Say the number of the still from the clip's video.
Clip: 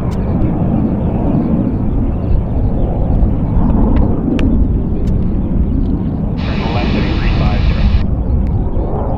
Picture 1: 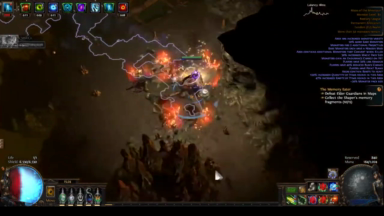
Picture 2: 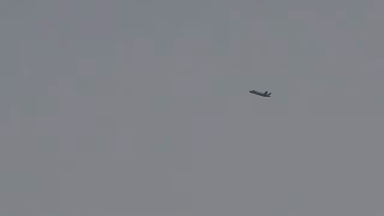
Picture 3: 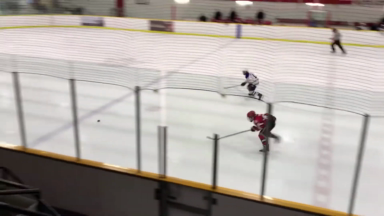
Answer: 2